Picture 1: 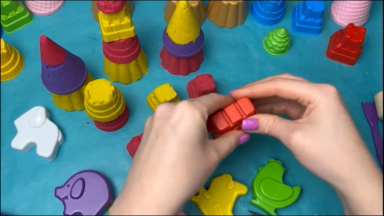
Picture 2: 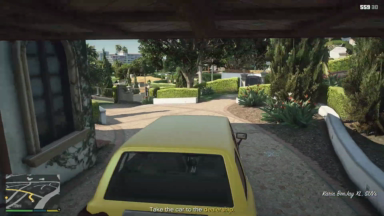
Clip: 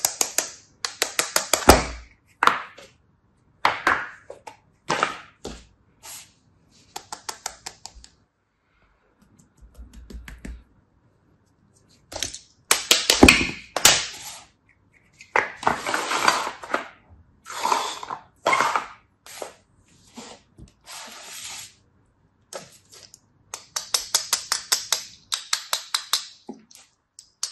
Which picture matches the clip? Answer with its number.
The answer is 1